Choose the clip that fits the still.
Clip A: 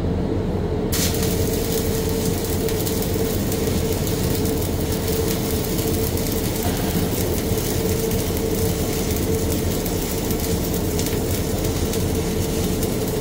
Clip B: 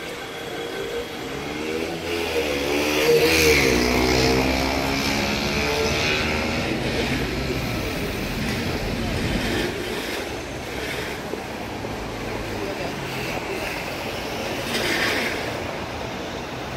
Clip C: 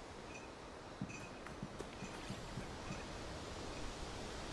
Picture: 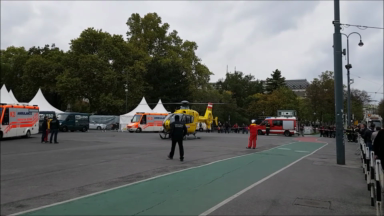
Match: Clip B